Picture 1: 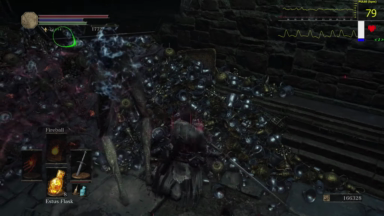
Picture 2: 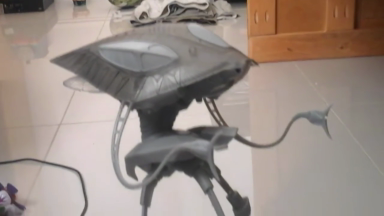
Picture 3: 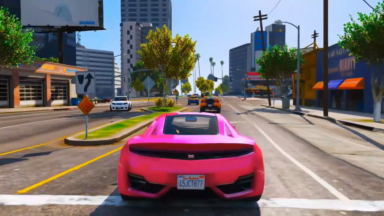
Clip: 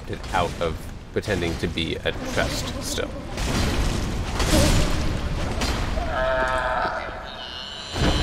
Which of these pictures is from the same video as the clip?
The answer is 1